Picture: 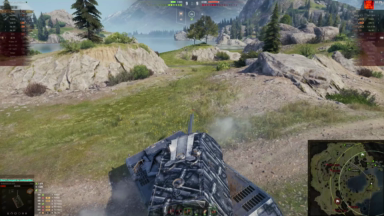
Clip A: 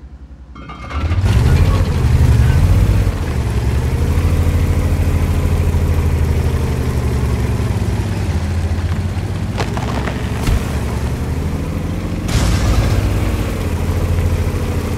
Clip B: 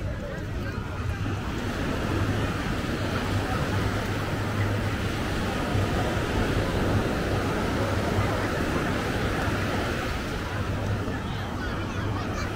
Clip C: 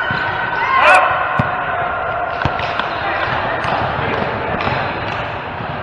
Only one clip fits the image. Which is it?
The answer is A